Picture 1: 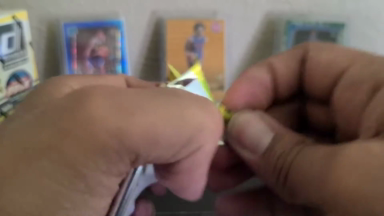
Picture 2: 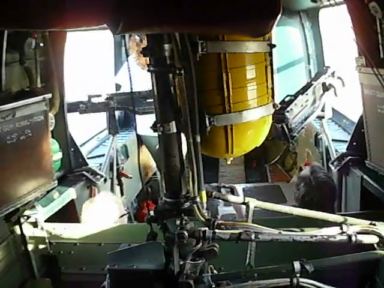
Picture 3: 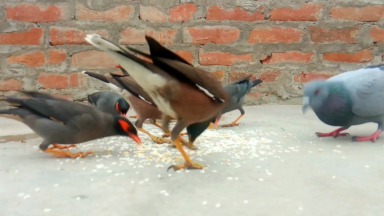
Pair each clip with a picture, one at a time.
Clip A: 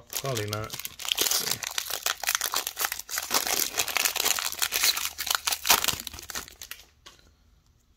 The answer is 1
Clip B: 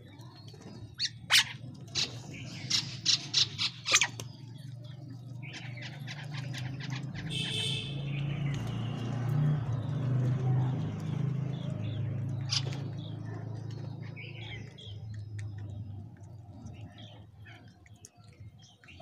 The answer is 3